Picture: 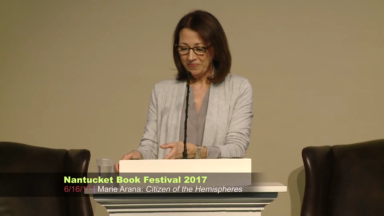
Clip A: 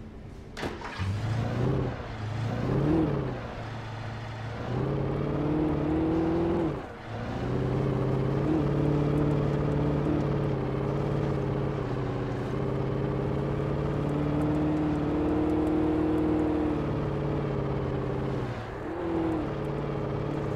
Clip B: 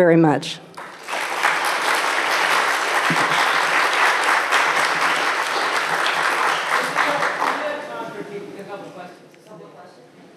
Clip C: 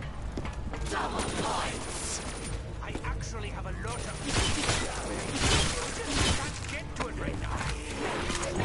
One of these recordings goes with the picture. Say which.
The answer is B